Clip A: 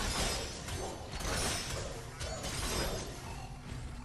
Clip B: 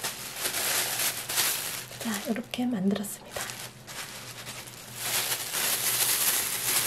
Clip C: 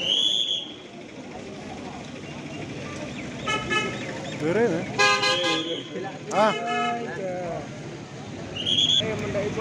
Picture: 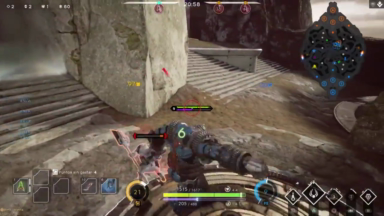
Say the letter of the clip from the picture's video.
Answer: A